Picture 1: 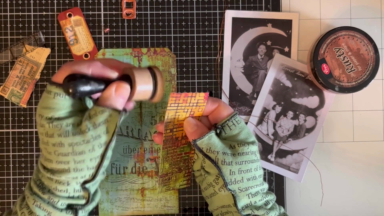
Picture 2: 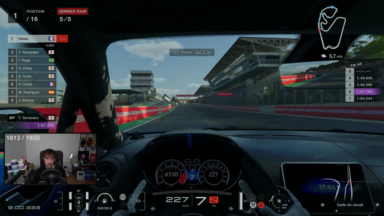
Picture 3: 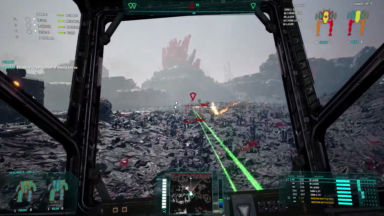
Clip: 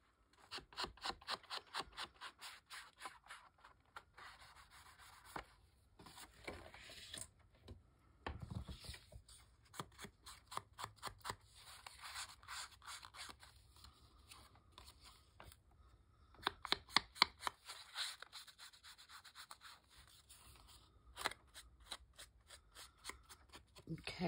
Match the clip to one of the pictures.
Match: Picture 1